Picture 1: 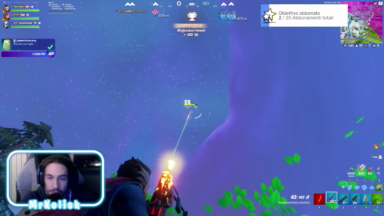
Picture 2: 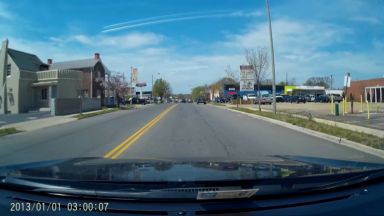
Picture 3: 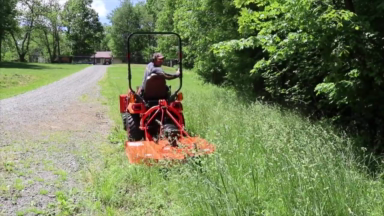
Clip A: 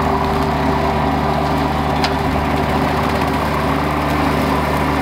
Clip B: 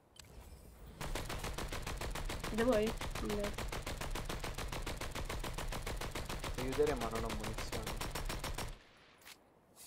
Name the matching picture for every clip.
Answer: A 3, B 1